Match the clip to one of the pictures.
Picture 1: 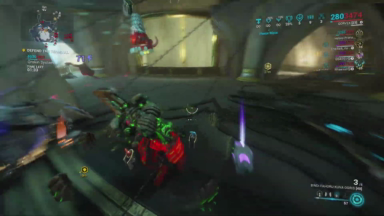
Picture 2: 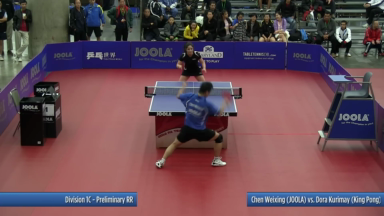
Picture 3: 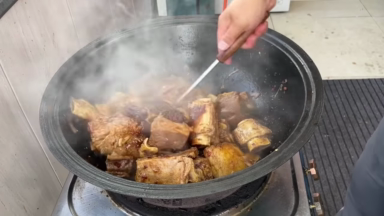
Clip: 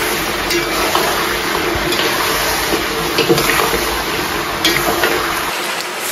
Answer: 3